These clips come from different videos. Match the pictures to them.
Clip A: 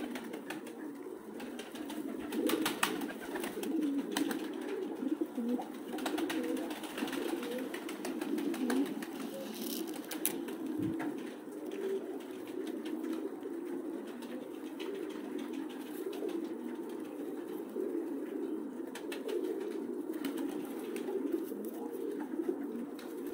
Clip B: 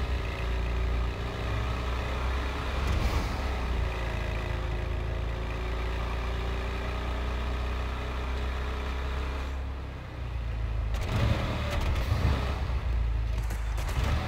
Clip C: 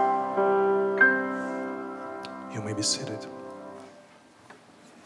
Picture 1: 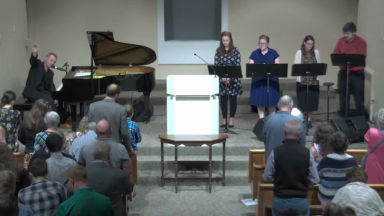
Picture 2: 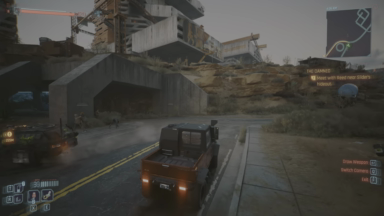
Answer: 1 C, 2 B